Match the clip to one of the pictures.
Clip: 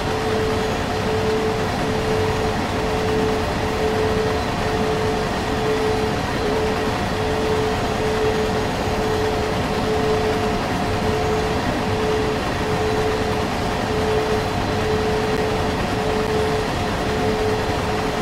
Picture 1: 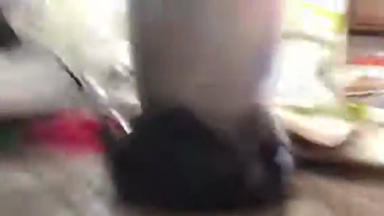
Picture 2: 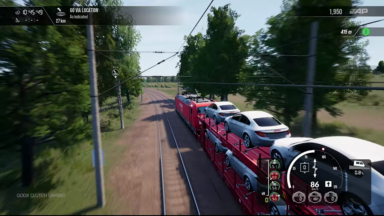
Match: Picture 2